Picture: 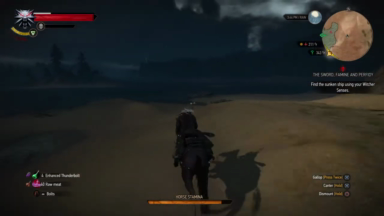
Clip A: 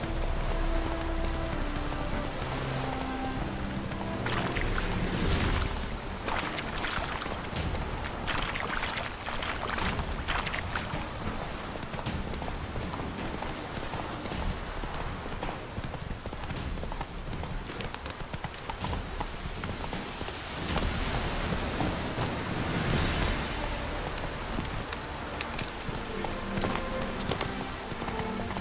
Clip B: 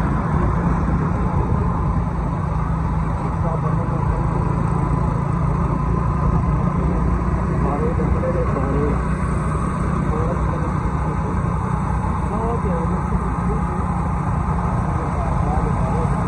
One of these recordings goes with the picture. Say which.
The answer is A